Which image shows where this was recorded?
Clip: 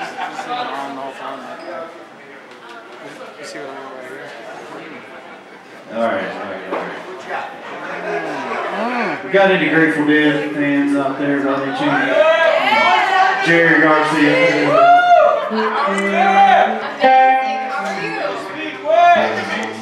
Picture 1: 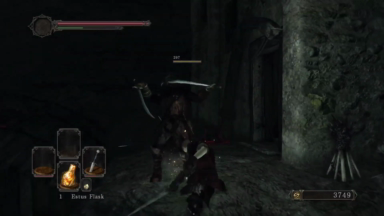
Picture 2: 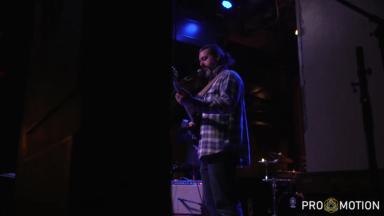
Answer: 2